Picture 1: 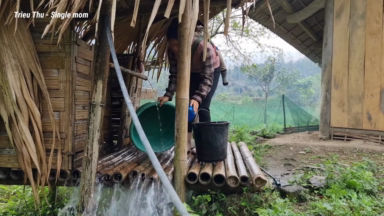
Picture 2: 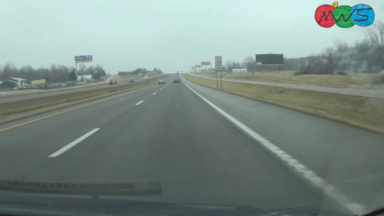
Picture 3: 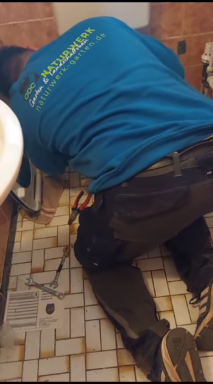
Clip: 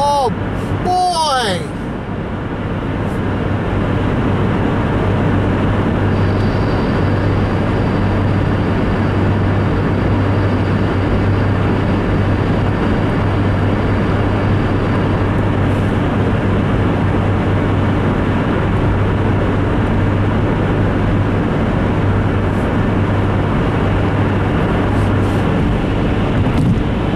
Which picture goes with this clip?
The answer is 2